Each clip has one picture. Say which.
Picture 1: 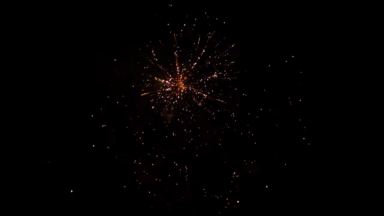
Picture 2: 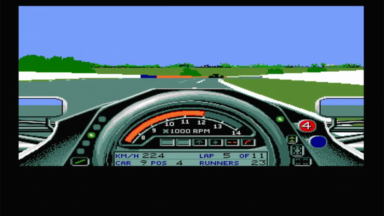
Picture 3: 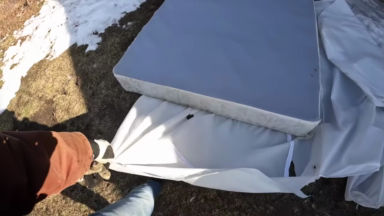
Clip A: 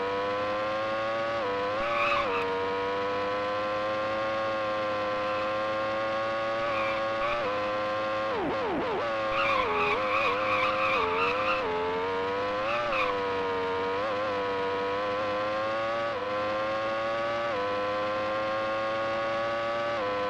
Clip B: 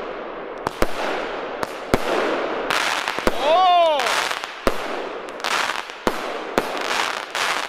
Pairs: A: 2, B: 1